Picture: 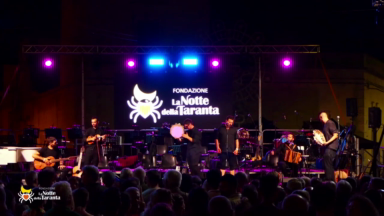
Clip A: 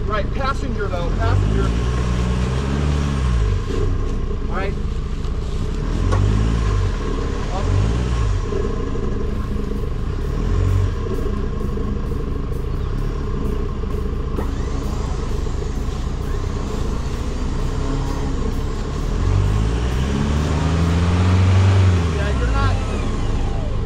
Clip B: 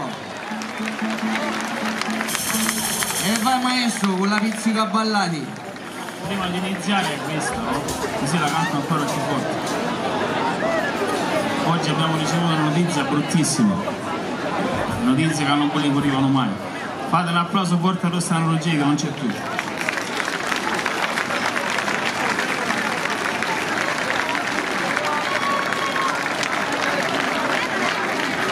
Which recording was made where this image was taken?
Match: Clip B